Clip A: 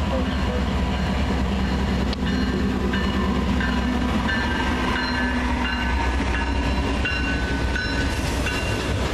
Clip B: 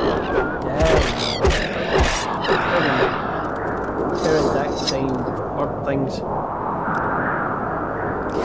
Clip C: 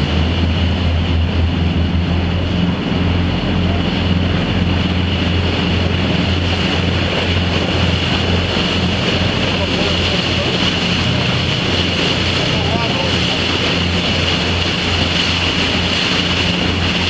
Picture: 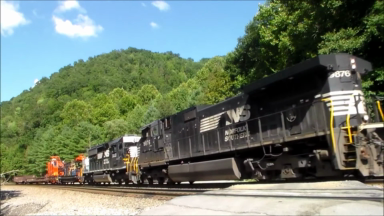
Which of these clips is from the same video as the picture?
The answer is A